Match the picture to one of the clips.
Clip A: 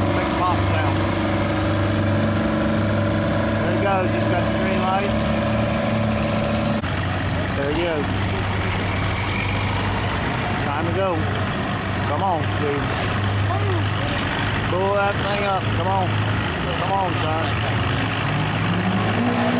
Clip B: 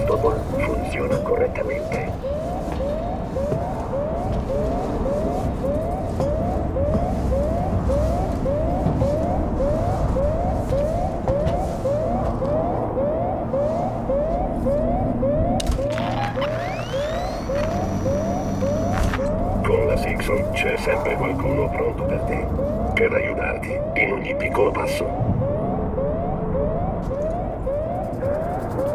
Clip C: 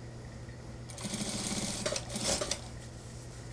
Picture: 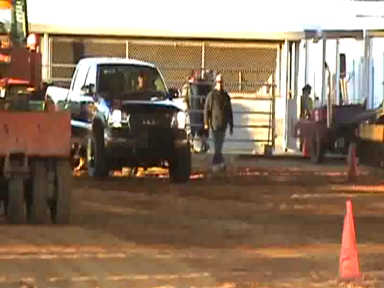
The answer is A